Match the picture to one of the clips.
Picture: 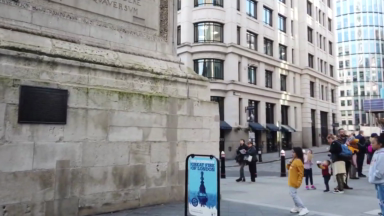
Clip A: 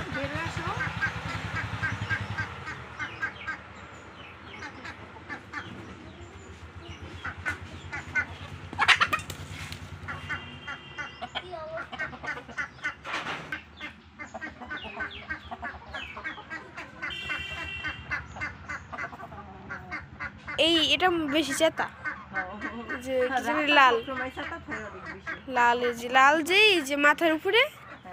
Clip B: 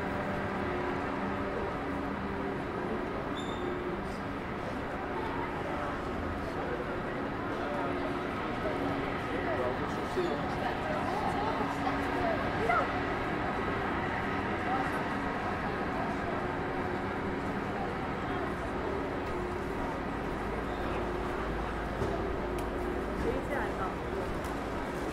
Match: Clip B